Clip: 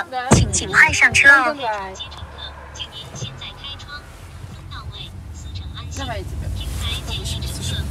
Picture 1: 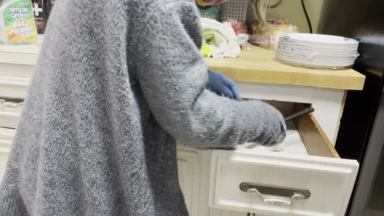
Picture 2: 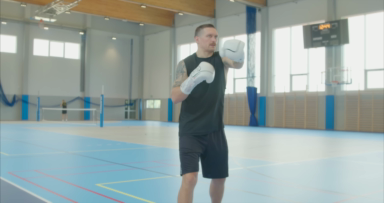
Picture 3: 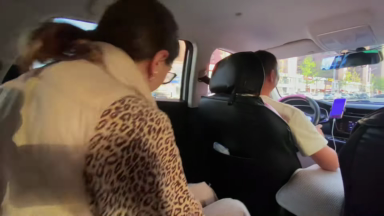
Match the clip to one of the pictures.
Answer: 3